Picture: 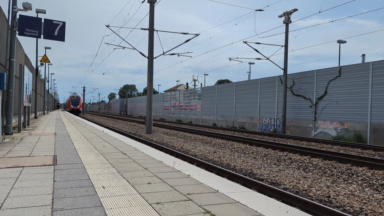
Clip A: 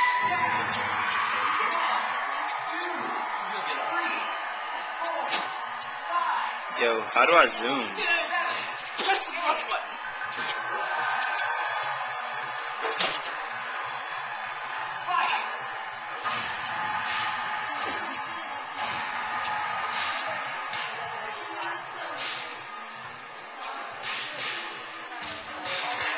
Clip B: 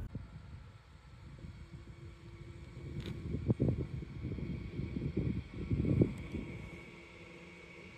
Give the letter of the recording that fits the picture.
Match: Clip B